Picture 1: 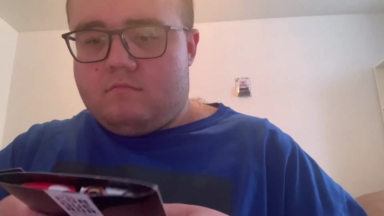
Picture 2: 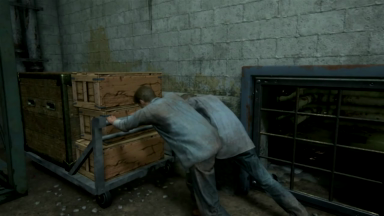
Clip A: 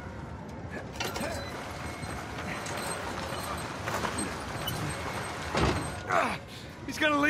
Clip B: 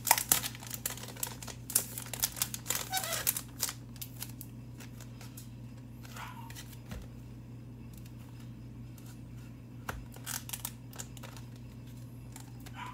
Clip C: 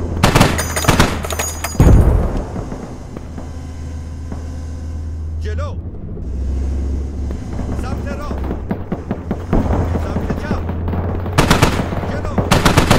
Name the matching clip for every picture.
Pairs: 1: B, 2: A